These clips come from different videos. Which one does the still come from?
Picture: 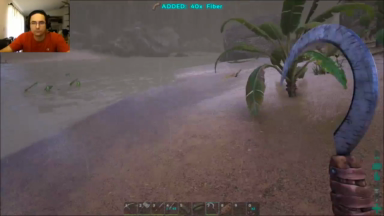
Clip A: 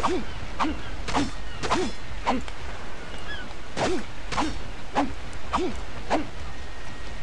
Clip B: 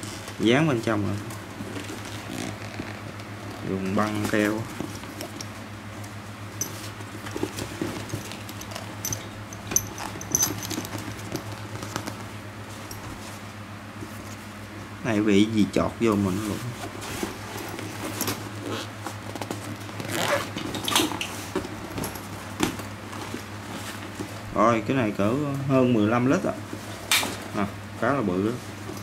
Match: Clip A